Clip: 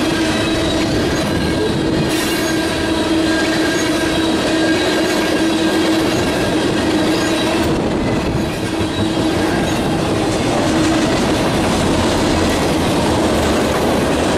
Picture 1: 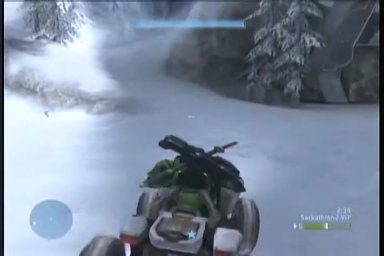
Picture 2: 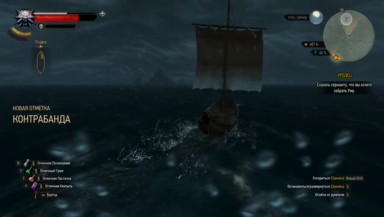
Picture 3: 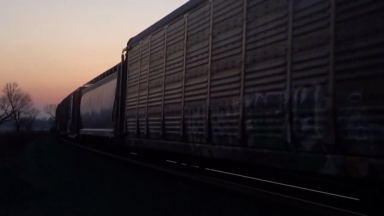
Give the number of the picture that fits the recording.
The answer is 3